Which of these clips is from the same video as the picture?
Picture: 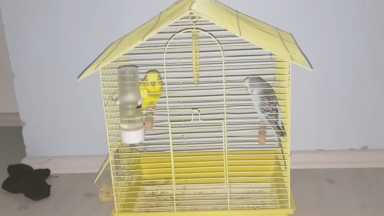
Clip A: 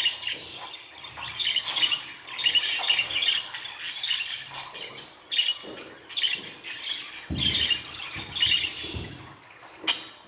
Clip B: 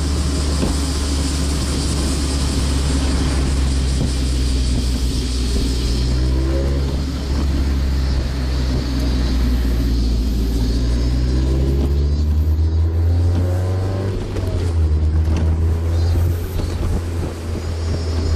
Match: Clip A